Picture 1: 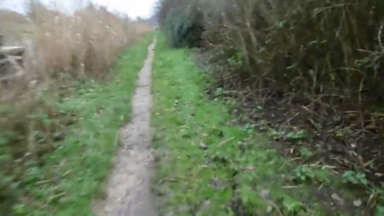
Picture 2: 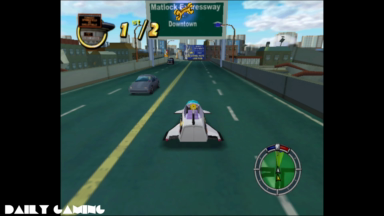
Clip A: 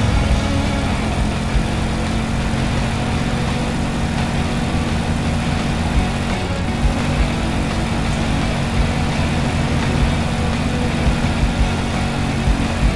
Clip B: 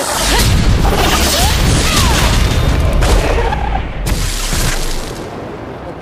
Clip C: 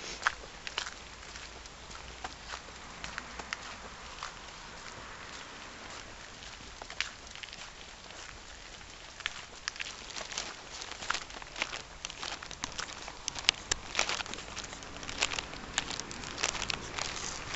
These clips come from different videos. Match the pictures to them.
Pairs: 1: C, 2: A